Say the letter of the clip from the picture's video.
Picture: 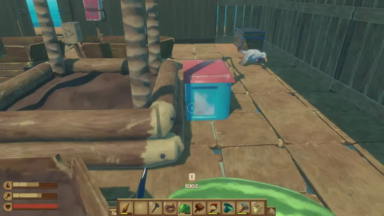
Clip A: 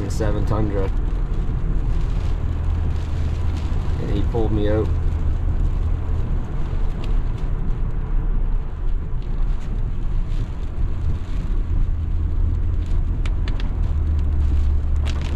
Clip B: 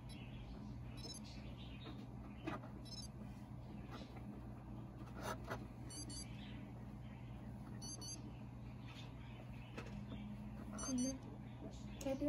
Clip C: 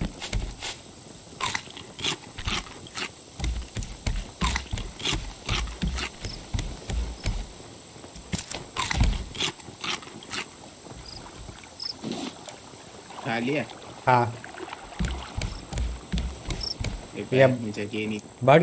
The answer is C